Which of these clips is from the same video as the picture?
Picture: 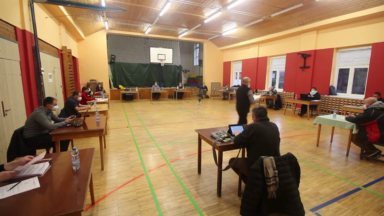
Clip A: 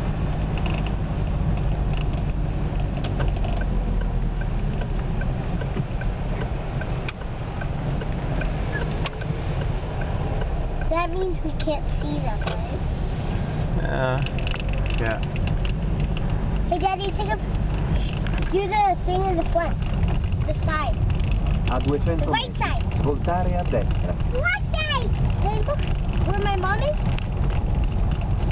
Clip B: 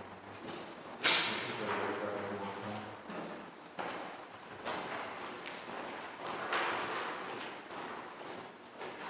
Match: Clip B